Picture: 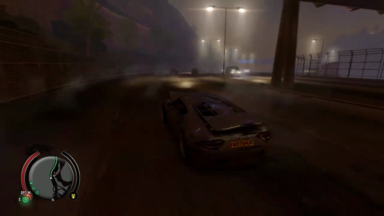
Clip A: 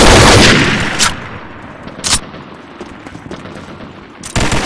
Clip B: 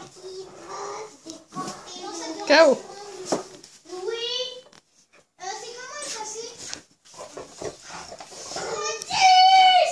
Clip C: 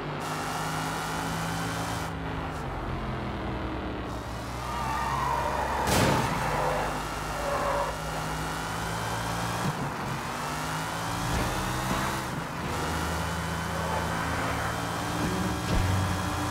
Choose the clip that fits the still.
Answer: C